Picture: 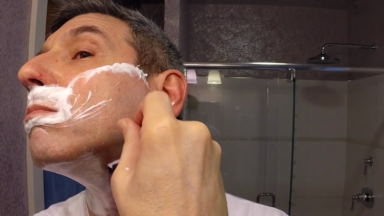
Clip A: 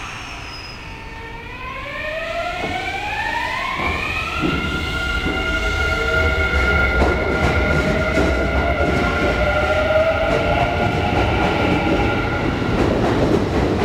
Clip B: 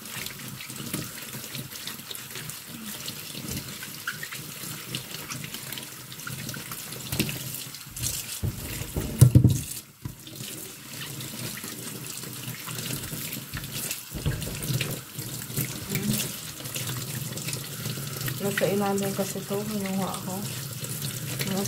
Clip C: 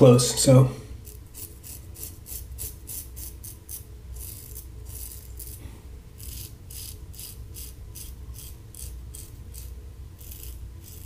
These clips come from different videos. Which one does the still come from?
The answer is C